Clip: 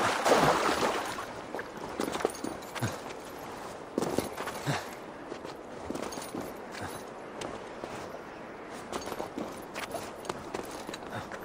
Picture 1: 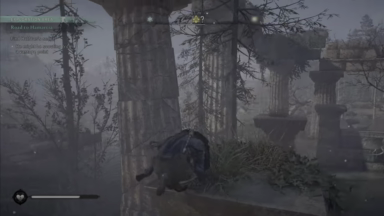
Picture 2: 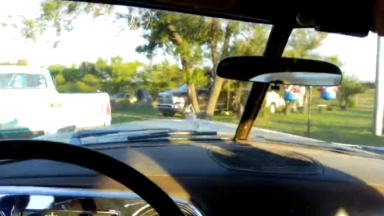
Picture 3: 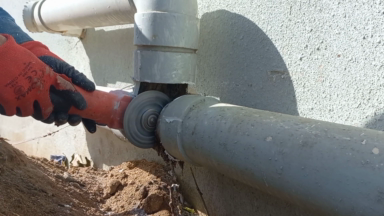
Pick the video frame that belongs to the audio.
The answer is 1